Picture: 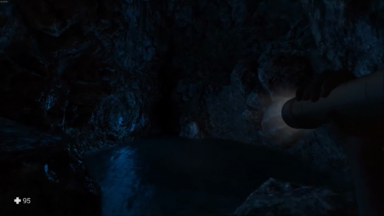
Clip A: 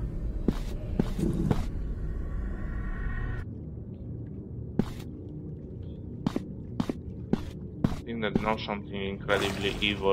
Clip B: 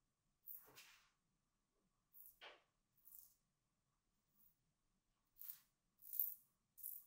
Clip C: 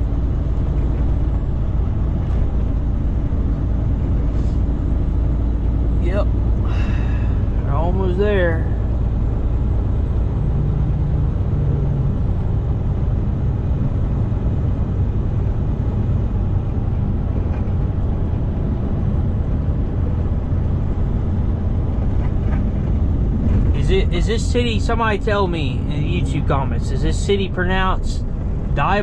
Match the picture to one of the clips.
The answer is A